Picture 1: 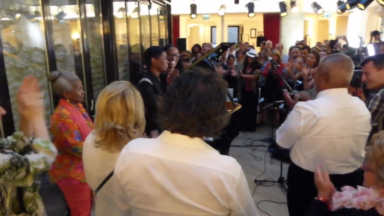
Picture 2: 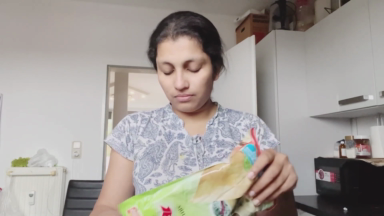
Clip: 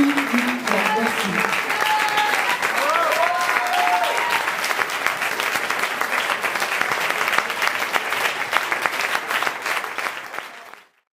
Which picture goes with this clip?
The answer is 1